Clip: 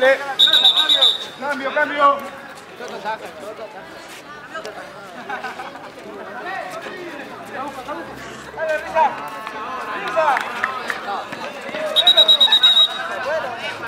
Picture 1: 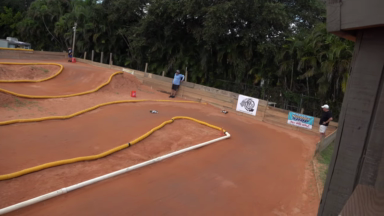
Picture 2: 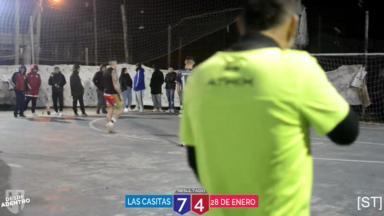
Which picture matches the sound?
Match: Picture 2